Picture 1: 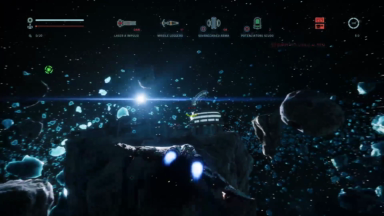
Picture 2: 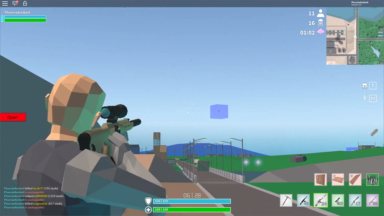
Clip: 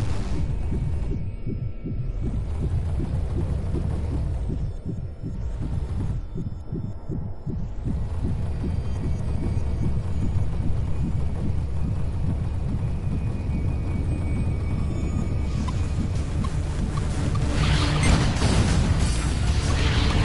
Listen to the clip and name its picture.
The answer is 1